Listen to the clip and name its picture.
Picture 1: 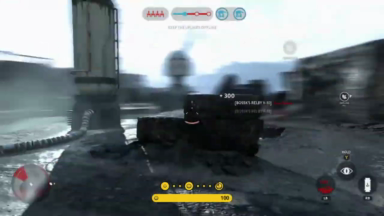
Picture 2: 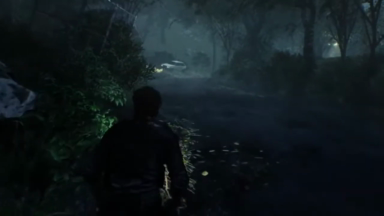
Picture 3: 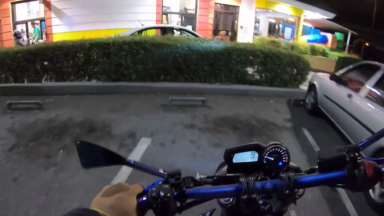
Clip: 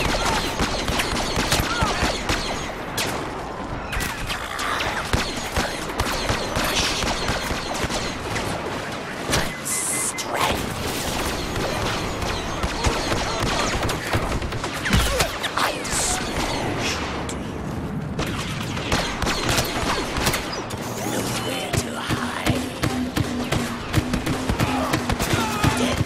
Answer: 1